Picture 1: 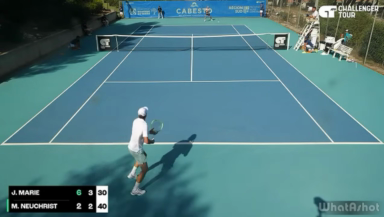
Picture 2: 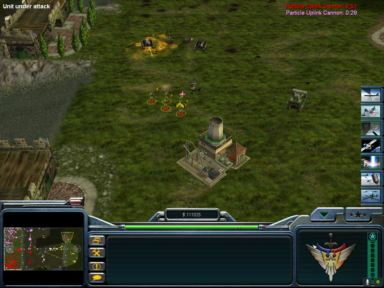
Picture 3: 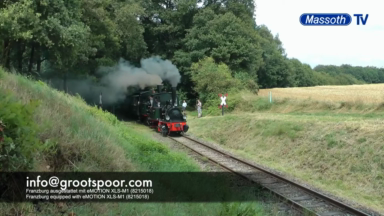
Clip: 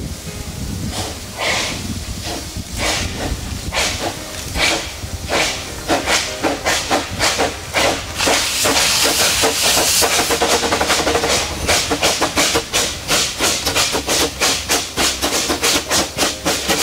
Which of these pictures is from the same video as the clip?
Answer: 3